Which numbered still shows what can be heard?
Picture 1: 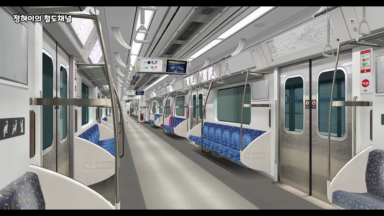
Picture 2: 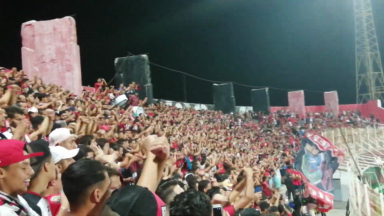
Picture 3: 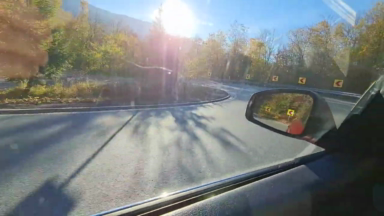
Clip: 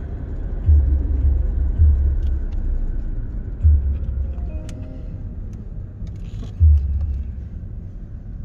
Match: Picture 3